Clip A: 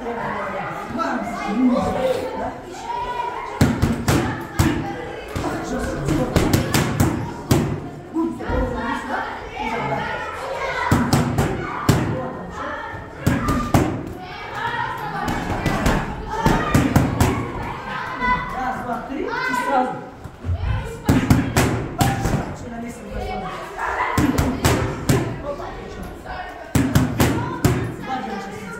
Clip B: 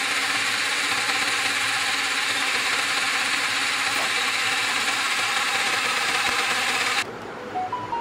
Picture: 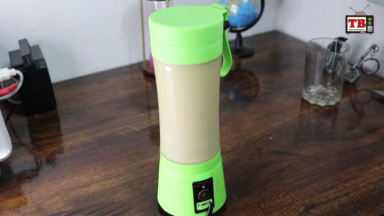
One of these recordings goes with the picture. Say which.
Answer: B